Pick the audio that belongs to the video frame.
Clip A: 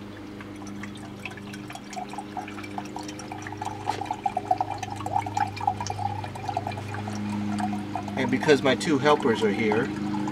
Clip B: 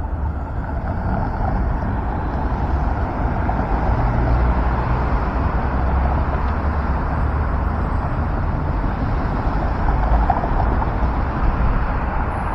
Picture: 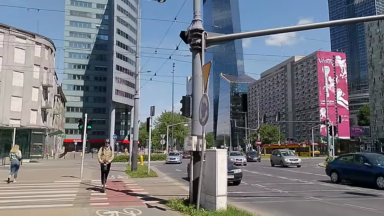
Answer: B